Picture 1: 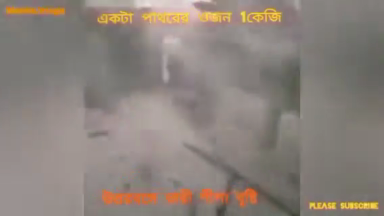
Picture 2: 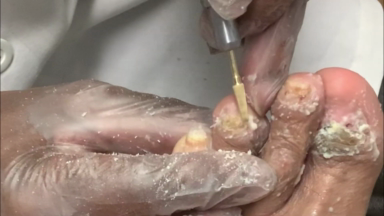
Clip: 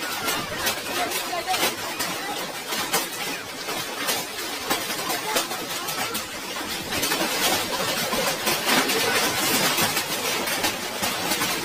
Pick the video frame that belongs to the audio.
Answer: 1